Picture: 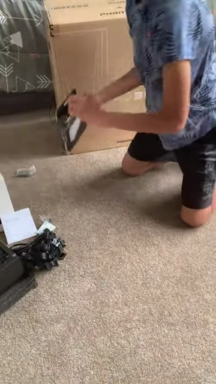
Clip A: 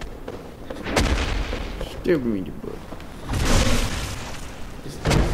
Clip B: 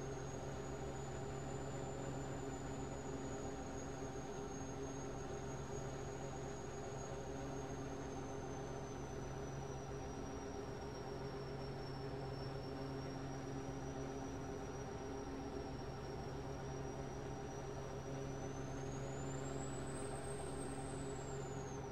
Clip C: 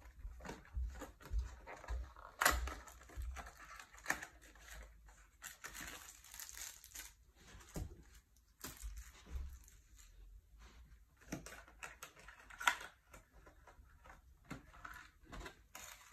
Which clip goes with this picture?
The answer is C